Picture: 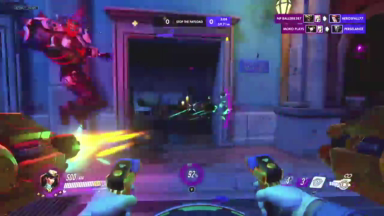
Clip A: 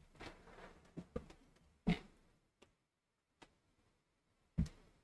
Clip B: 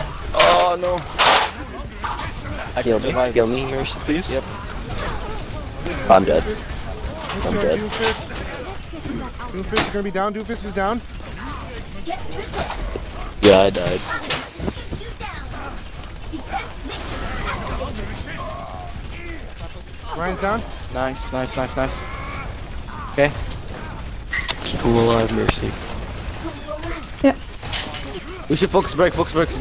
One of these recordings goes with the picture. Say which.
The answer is B